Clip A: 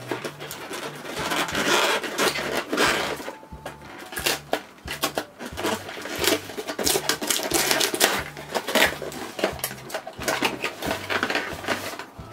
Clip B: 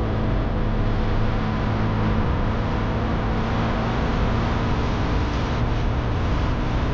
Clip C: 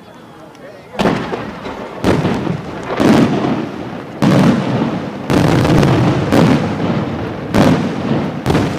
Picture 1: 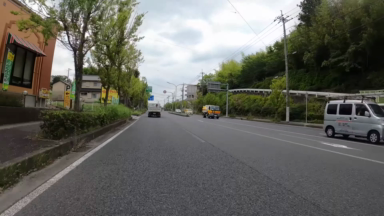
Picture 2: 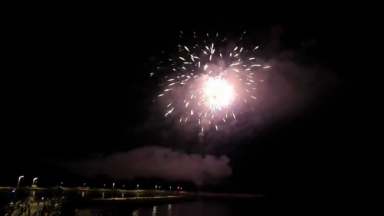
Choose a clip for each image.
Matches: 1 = B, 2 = C